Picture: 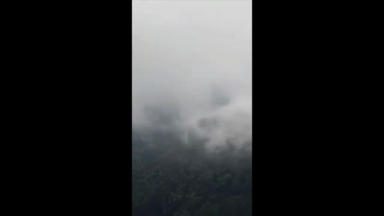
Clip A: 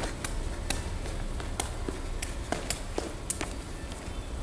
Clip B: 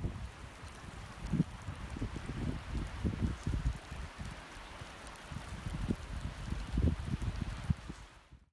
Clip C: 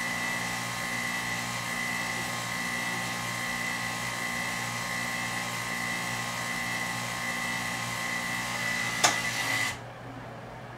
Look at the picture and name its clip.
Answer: B